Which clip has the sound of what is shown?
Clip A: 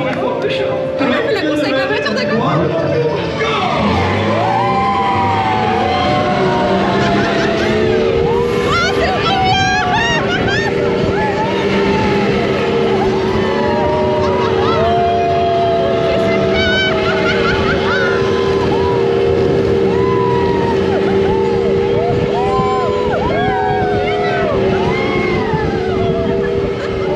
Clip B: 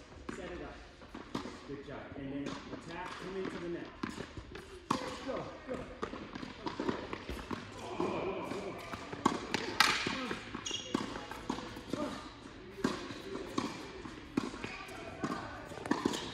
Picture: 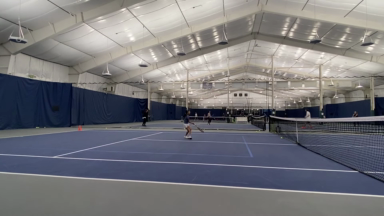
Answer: B